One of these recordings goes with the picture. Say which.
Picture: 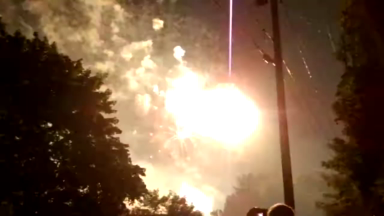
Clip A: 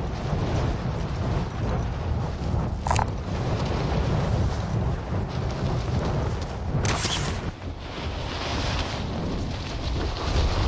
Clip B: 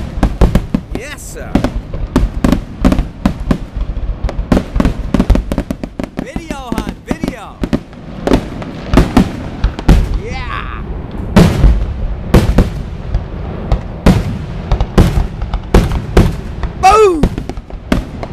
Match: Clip B